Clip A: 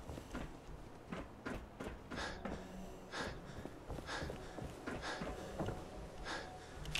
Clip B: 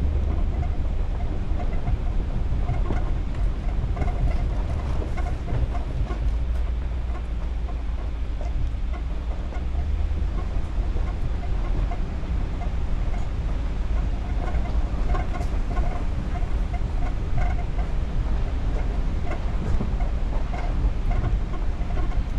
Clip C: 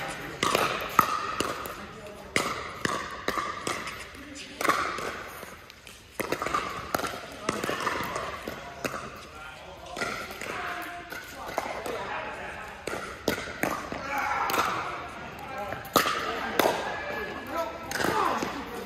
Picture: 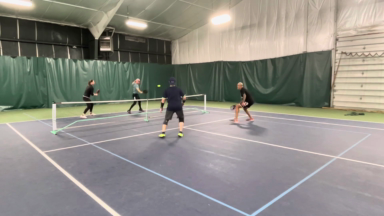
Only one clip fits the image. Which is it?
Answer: C